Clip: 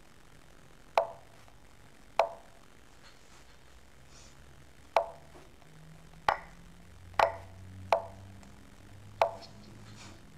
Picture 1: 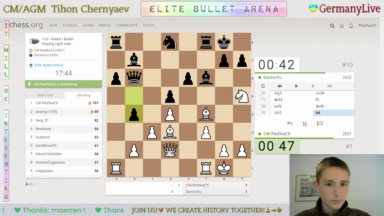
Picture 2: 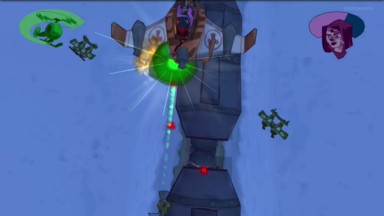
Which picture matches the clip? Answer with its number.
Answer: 1